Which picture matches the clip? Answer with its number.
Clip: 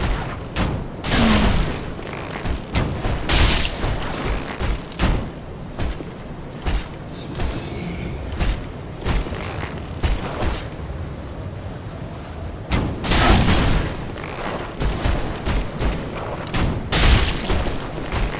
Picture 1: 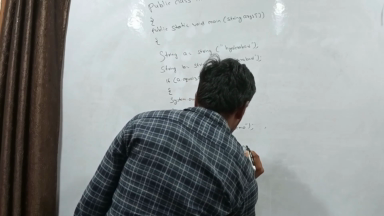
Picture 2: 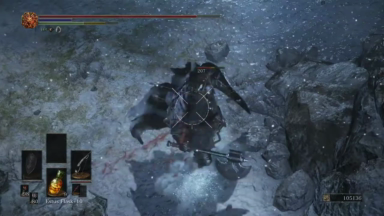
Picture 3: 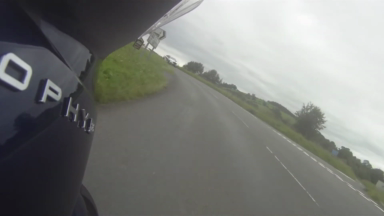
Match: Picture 2